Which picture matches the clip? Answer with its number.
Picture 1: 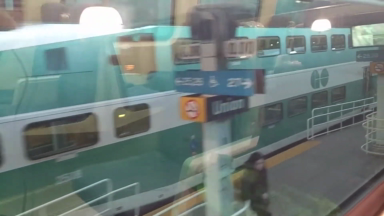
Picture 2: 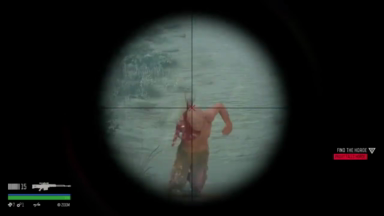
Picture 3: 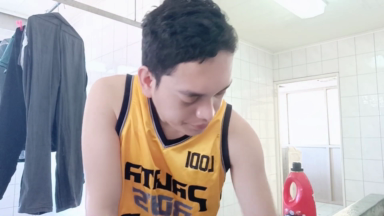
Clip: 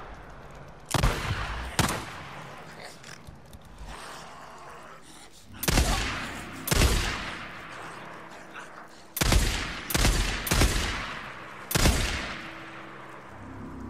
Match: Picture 2